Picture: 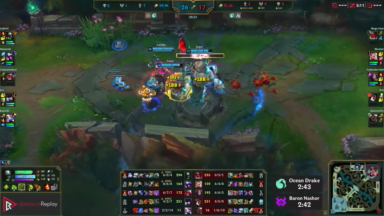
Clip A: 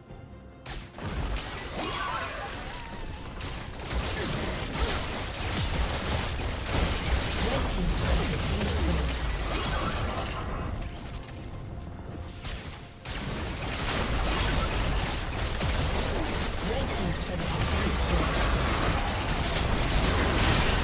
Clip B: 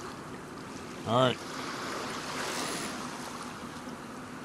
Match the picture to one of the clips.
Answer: A